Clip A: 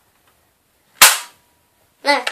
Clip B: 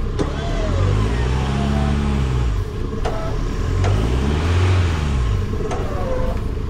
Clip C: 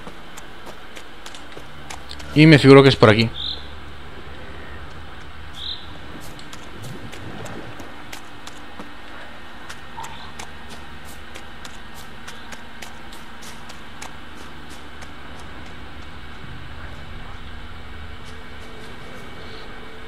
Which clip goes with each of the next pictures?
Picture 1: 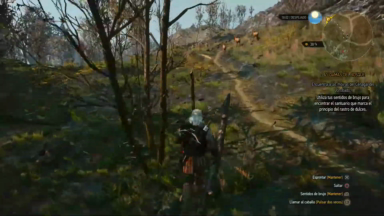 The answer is C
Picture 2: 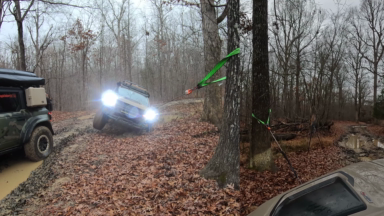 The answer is B